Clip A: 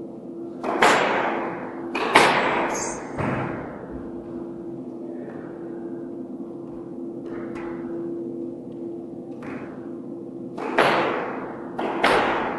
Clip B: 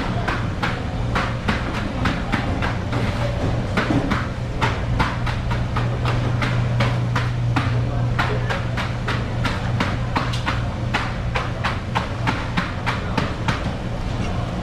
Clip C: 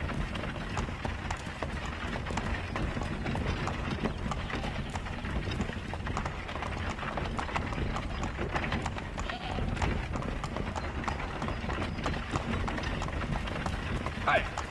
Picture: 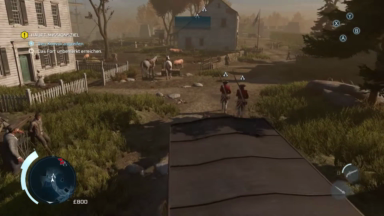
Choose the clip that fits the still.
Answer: C